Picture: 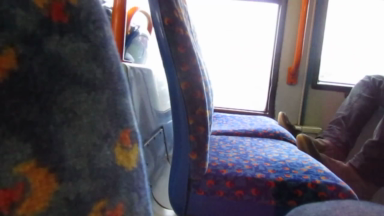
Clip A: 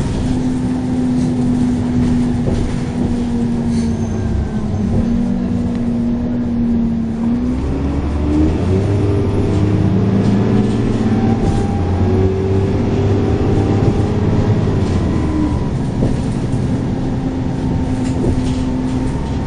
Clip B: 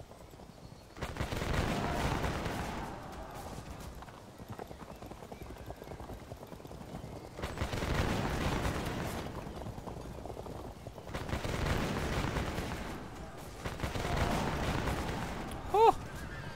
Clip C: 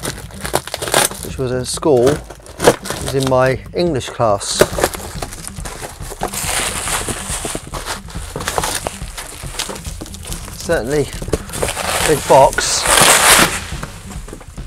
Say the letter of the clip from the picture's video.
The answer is A